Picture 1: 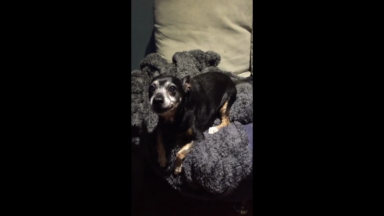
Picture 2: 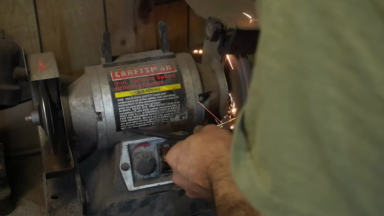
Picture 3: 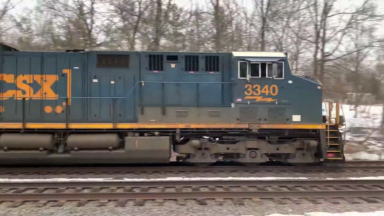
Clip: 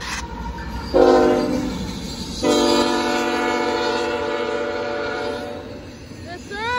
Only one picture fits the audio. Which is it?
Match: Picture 3